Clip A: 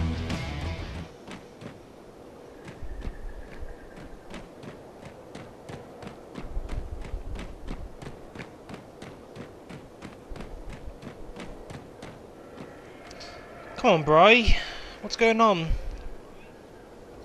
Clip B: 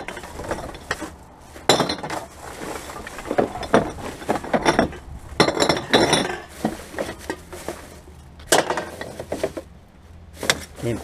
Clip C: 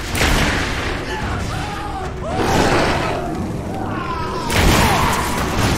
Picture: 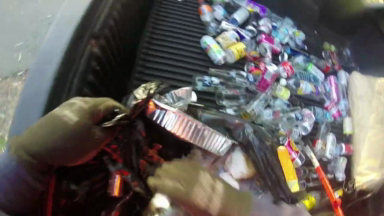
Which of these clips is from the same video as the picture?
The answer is B